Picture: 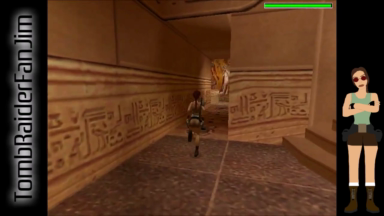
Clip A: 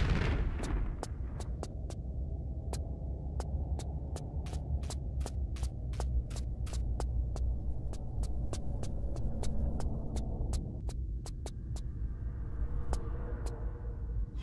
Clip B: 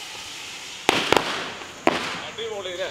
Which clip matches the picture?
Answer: A